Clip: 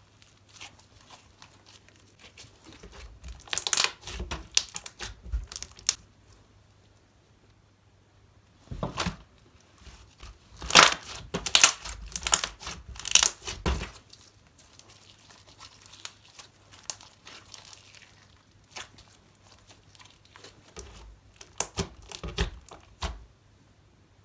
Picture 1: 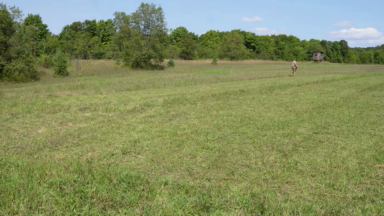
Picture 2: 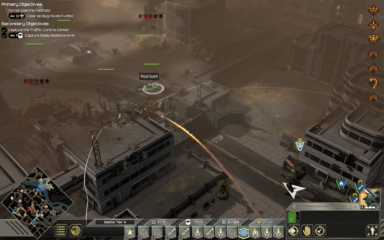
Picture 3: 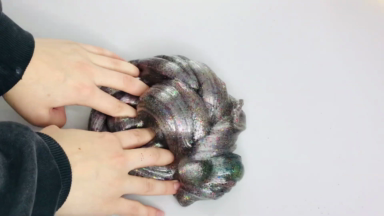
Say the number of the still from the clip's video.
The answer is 3